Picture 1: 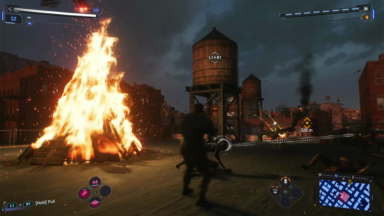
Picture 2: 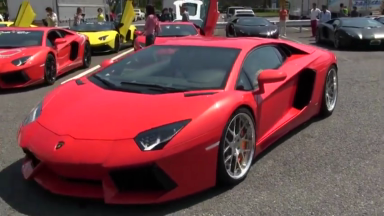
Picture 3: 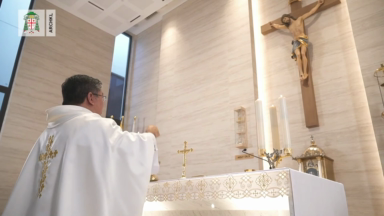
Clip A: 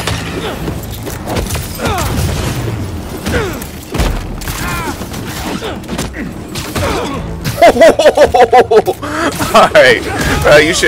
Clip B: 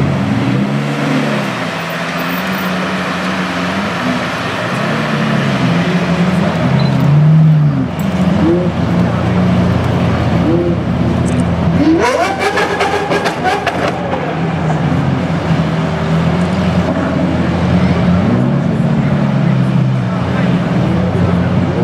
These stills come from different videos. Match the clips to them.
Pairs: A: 1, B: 2